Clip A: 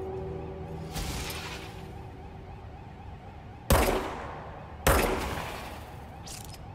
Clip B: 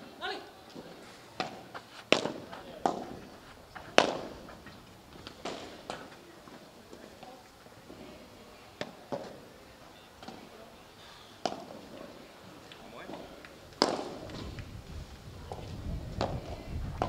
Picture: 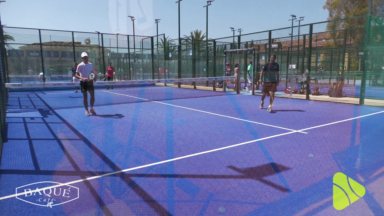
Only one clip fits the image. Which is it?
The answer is B